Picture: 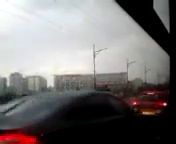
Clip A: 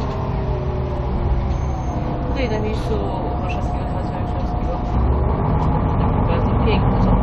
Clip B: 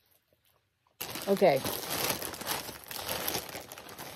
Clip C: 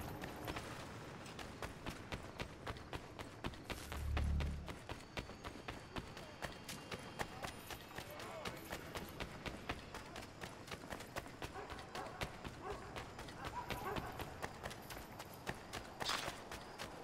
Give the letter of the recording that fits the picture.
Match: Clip A